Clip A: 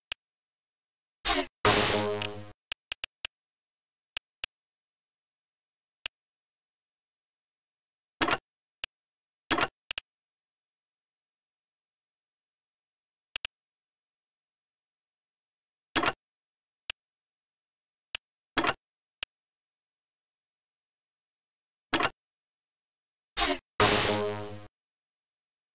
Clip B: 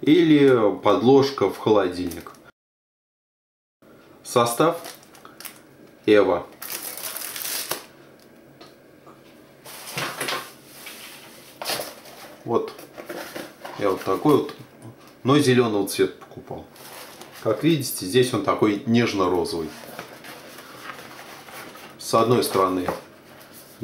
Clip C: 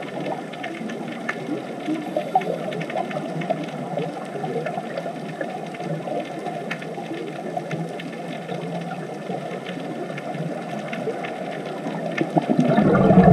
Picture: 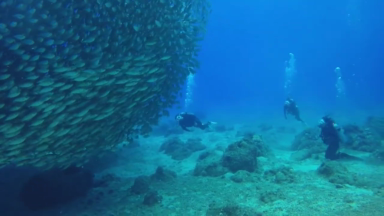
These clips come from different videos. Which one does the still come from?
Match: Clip C